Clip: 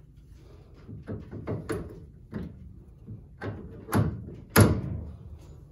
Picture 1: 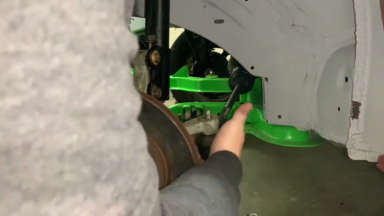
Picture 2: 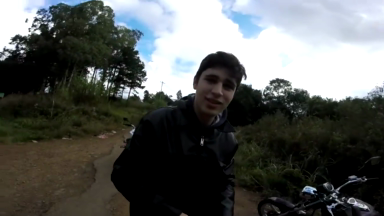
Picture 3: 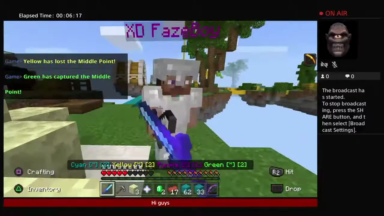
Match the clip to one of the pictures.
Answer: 1